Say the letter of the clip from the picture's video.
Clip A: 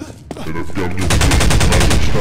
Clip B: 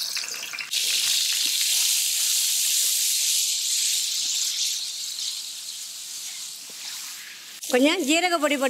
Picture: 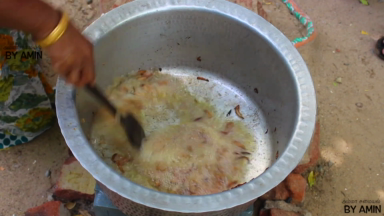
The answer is B